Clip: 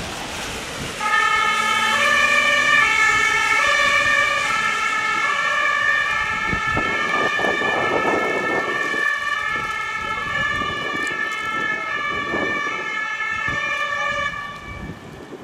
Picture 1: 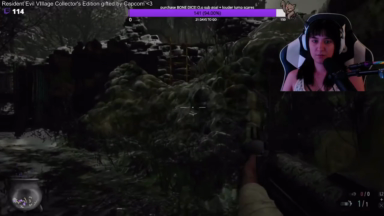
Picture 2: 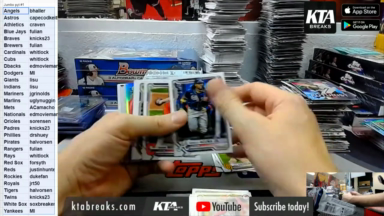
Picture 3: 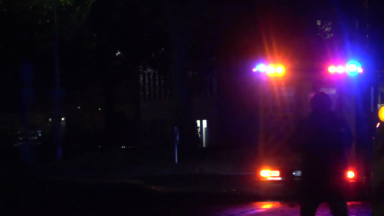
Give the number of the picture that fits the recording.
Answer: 3